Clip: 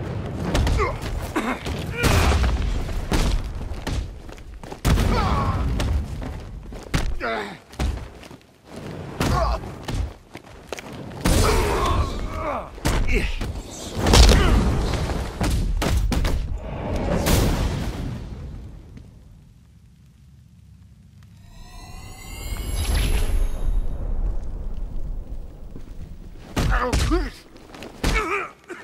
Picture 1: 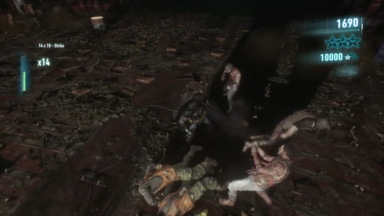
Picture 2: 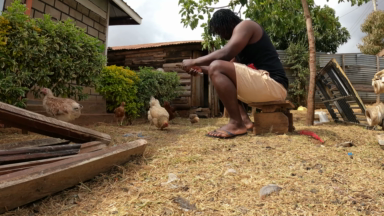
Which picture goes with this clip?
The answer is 1